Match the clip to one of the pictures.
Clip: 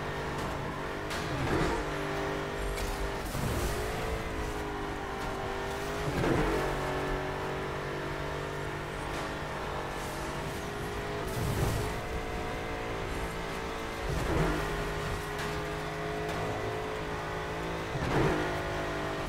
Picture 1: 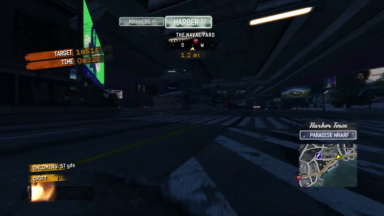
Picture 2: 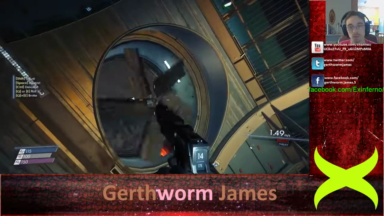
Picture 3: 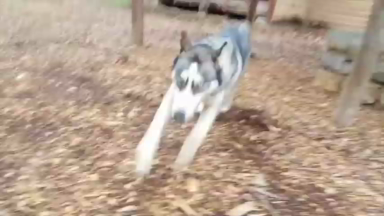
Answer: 1